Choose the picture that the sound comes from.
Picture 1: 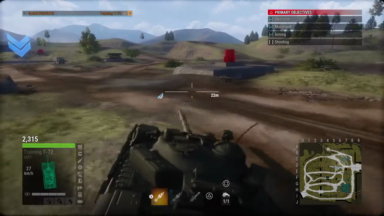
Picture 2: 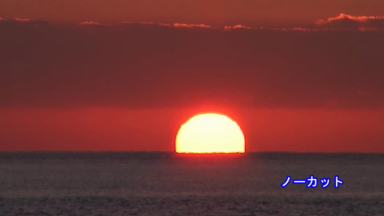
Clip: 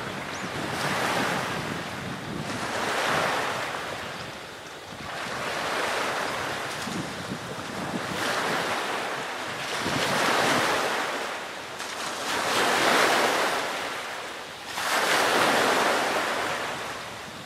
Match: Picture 2